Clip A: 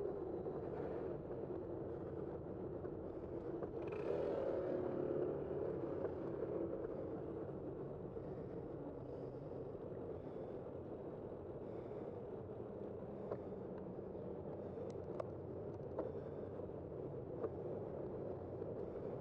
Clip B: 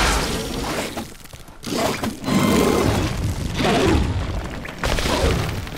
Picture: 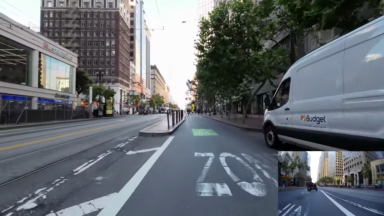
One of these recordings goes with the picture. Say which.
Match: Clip A